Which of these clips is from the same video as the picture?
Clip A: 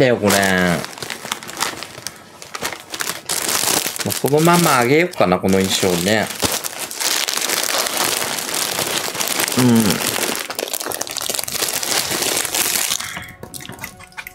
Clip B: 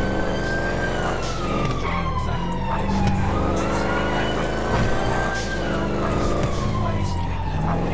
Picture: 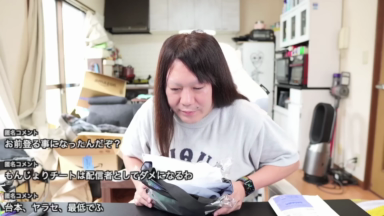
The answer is A